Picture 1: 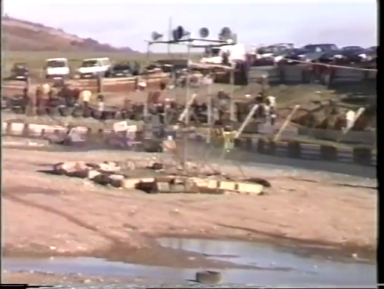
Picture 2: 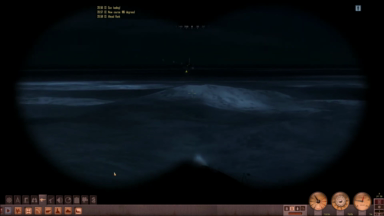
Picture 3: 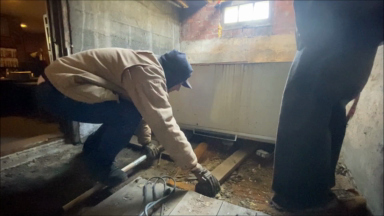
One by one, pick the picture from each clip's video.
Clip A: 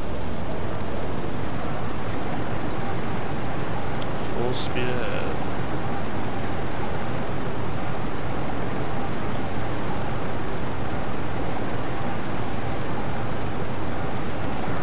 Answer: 2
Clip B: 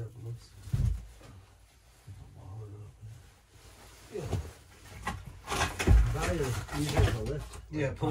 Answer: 3